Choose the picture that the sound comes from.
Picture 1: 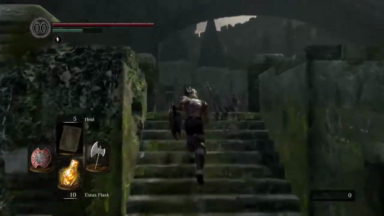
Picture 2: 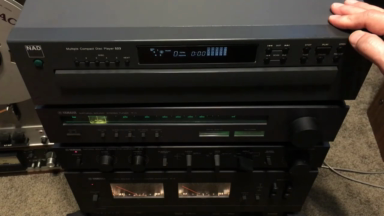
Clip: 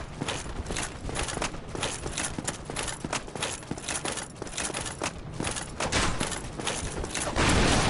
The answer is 1